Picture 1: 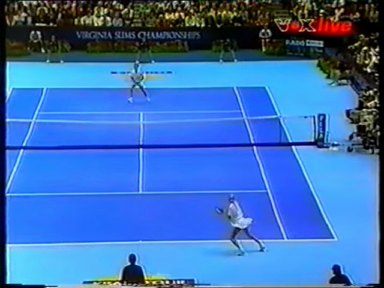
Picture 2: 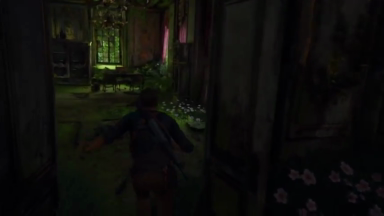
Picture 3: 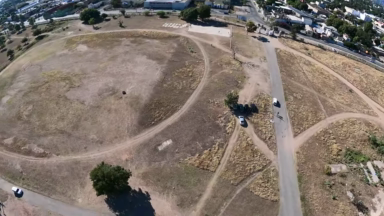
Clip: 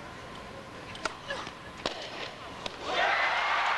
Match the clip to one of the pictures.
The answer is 1